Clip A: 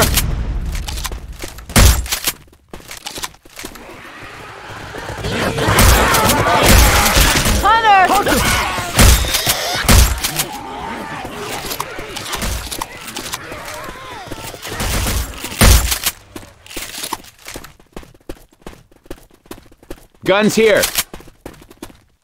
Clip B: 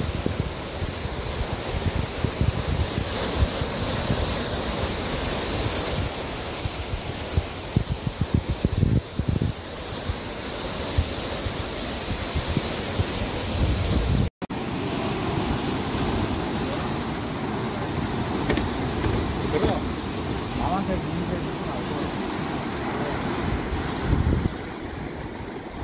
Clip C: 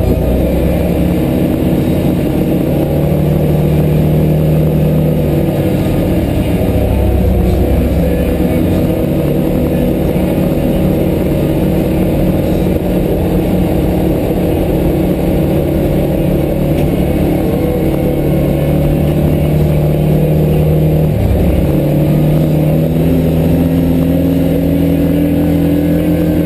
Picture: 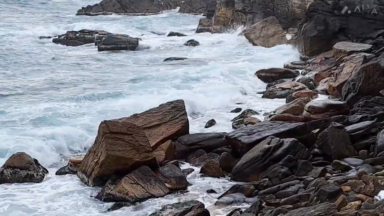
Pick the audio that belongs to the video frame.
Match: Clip B